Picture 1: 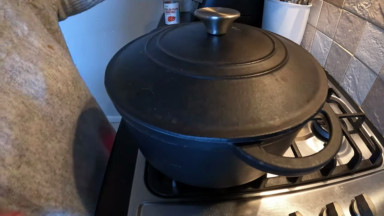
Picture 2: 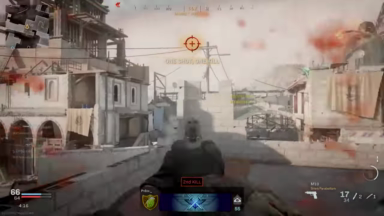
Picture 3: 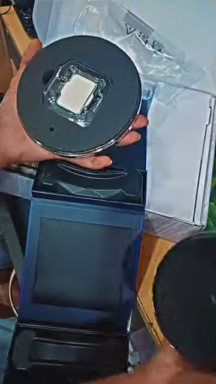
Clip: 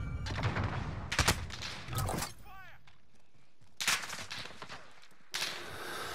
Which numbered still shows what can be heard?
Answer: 2